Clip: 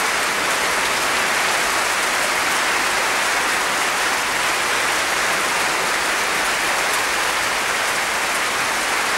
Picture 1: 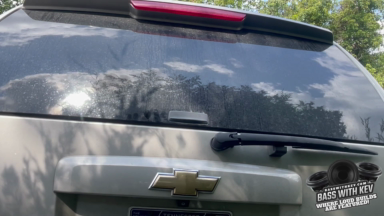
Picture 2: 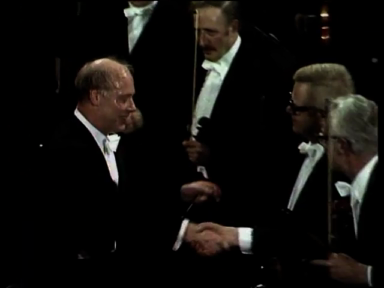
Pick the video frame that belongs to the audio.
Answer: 2